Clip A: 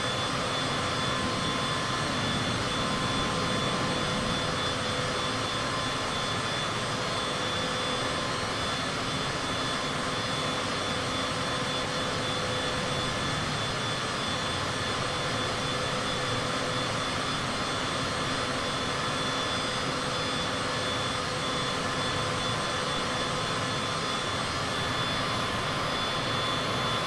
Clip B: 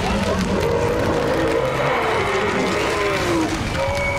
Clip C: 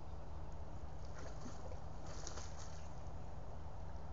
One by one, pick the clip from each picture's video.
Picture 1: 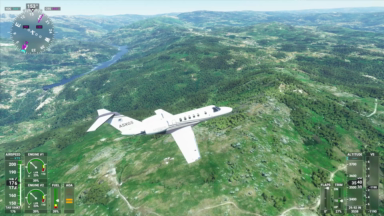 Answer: A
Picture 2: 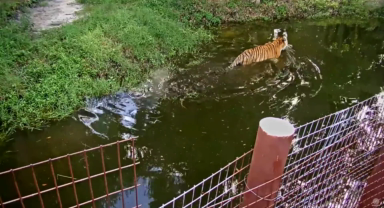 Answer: C